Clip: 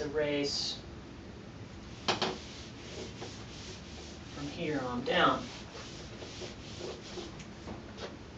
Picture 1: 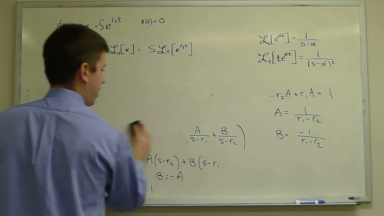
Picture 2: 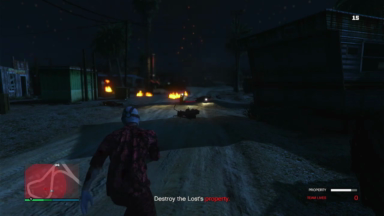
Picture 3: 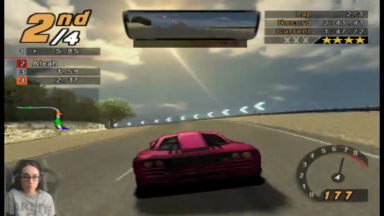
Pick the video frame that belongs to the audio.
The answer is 1